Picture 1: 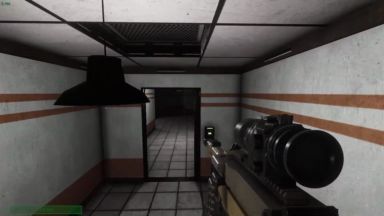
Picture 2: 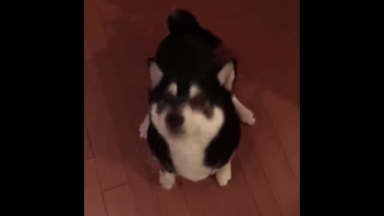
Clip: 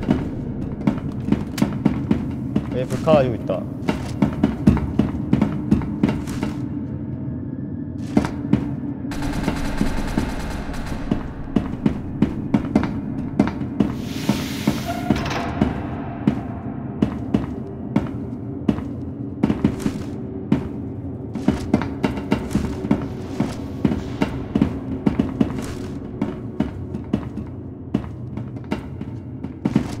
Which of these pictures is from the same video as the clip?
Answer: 1